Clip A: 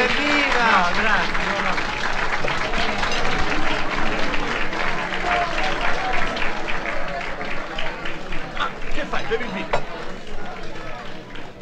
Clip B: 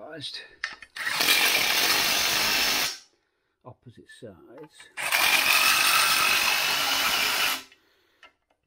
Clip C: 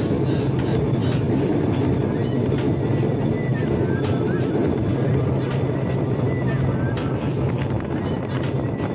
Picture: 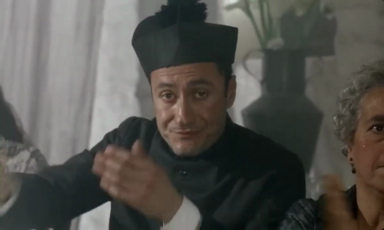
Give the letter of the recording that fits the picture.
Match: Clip A